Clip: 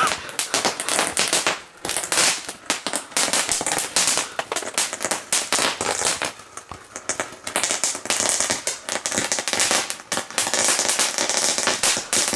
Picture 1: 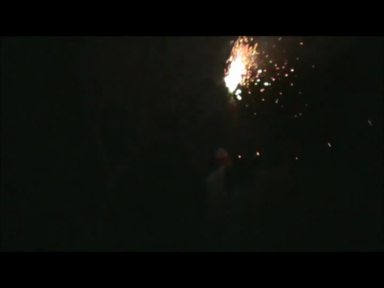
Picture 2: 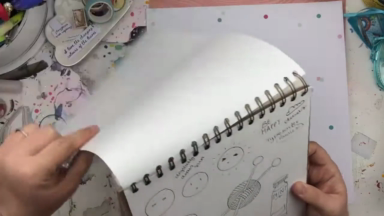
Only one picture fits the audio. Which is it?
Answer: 1